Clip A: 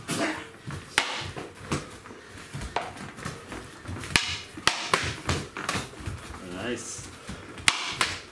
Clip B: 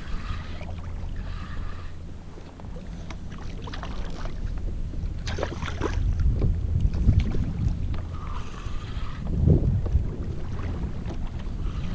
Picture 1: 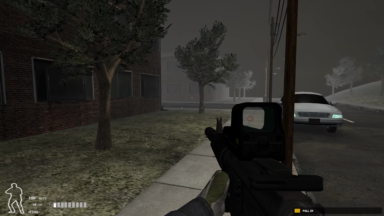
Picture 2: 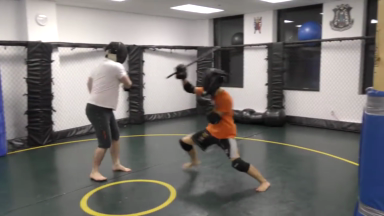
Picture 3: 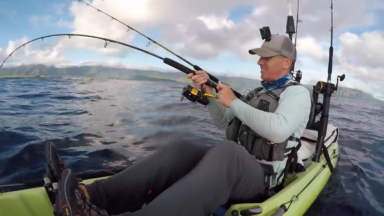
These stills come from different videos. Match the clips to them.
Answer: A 2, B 3